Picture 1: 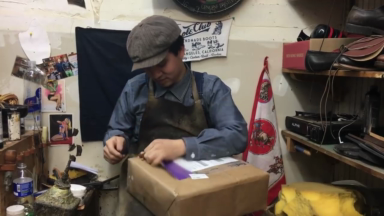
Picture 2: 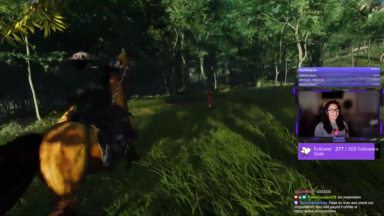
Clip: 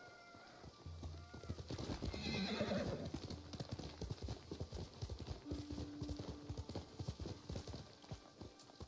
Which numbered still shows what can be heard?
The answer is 2